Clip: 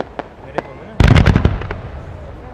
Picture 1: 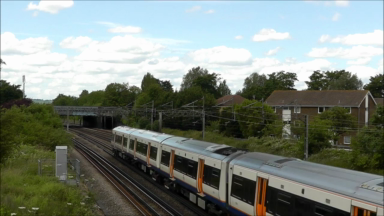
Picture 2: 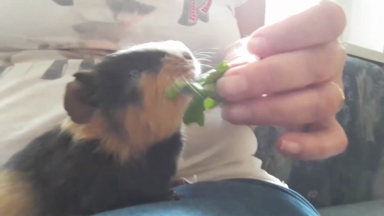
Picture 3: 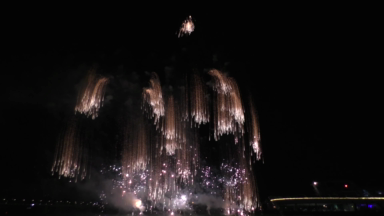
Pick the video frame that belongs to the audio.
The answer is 3